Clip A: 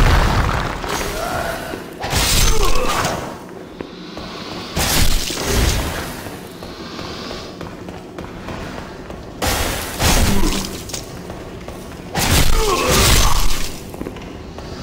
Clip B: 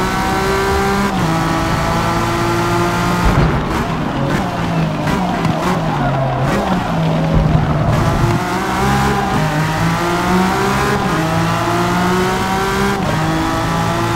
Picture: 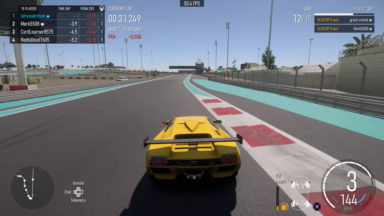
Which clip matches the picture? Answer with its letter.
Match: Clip B